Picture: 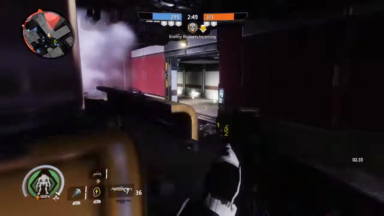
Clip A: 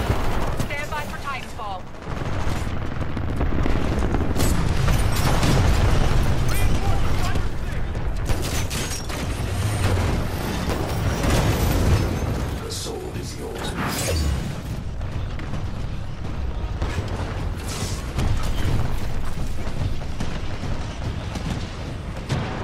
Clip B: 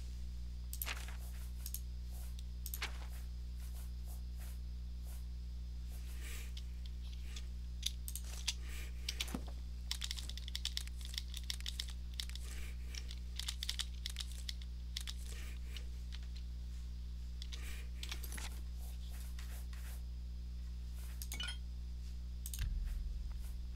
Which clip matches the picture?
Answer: A